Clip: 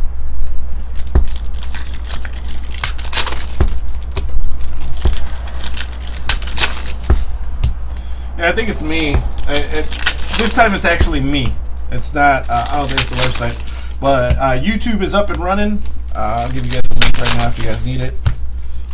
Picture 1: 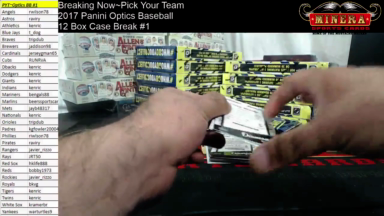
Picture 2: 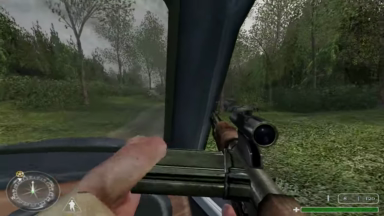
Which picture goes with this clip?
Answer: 1